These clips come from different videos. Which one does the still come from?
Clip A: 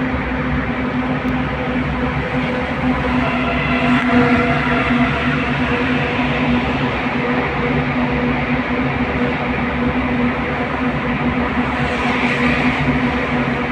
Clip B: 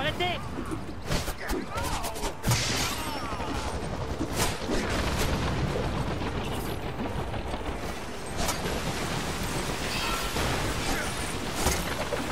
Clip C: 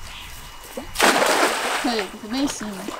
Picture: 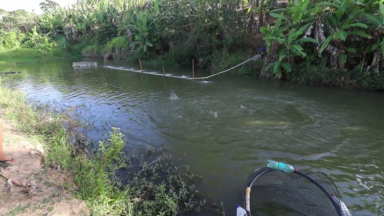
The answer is C